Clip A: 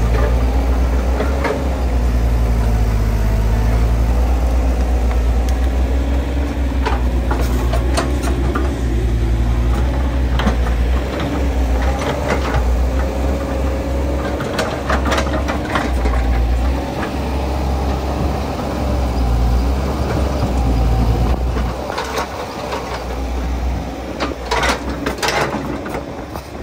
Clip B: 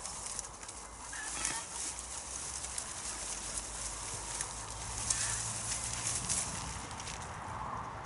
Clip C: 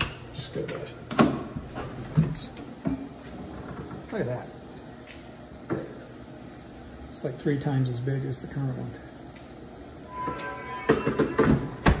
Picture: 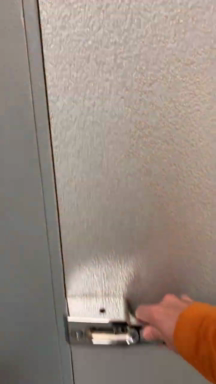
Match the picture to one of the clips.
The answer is C